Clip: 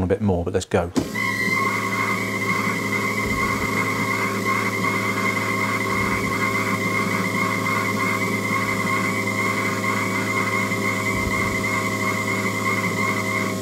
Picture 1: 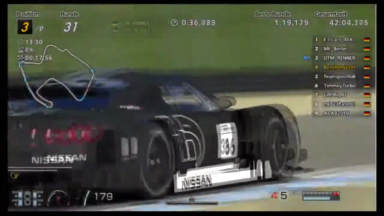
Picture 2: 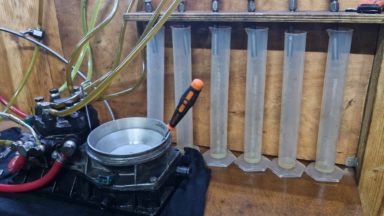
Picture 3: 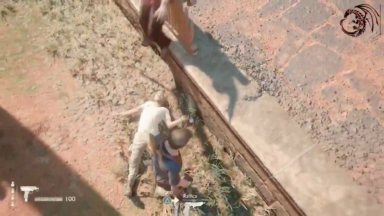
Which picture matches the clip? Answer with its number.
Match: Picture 2